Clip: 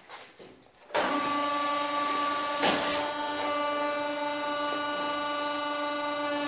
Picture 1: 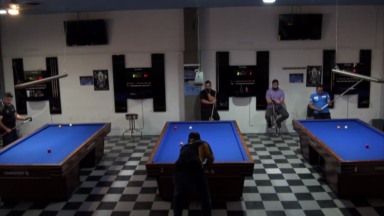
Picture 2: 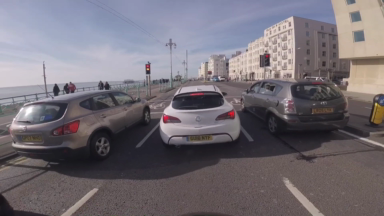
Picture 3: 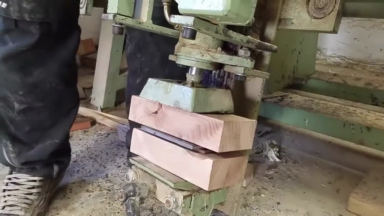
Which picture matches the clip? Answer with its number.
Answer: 3